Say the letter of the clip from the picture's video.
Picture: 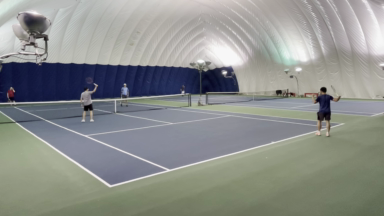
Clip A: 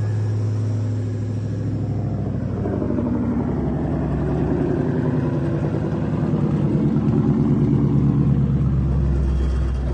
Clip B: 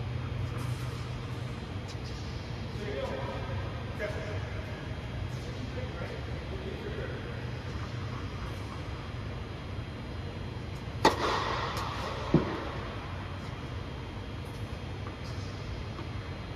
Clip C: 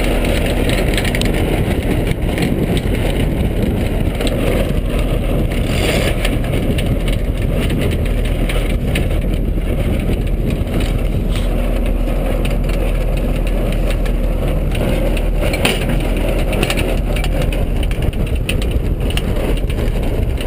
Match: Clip B